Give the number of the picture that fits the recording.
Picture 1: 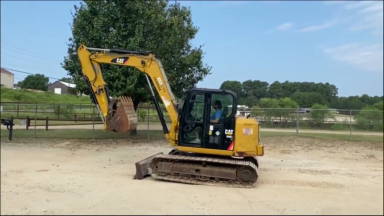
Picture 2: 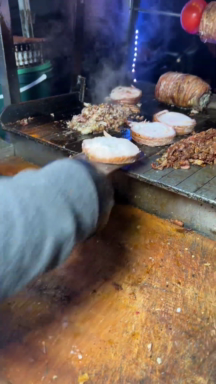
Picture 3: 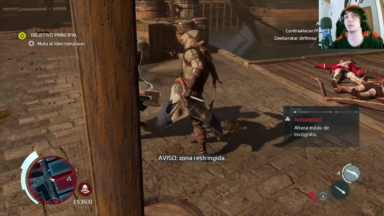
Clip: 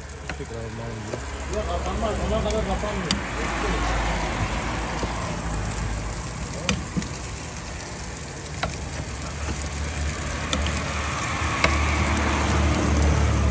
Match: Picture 2